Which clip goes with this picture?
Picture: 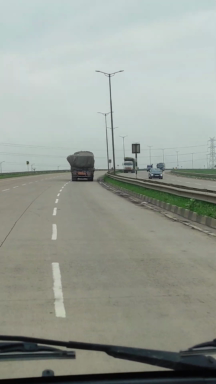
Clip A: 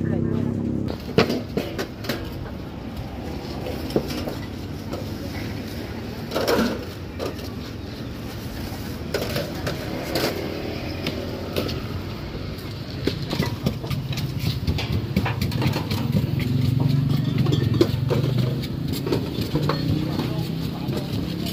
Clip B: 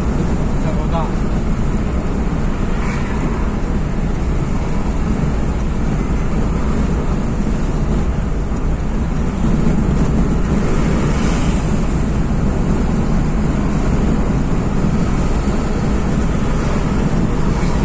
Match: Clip B